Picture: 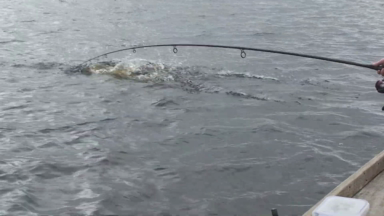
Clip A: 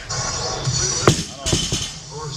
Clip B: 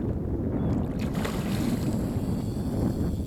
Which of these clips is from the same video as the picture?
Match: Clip B